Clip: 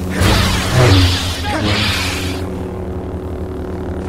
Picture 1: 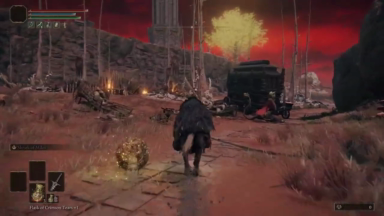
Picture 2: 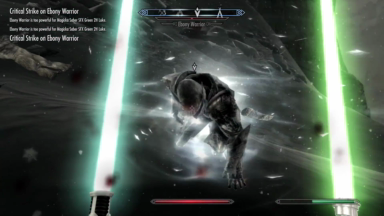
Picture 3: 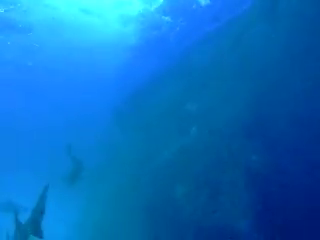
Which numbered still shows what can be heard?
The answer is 2